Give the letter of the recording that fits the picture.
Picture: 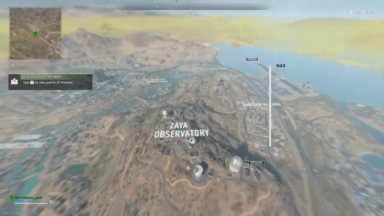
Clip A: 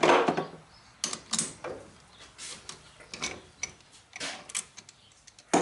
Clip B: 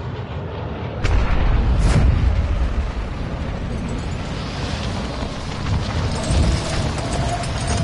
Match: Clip B